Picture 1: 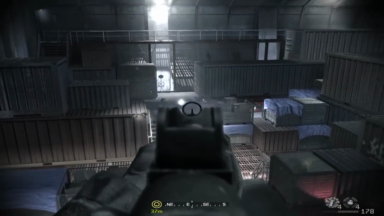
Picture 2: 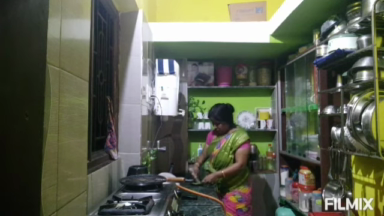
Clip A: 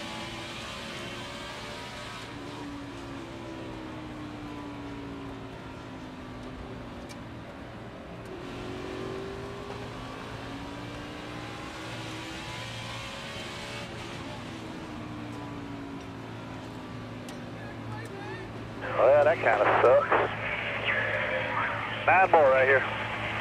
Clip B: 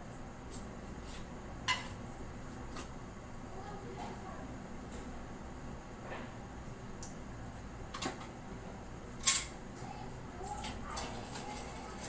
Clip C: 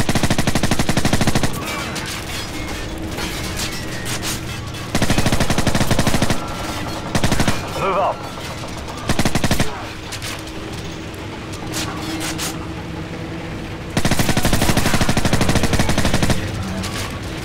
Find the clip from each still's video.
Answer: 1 C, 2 B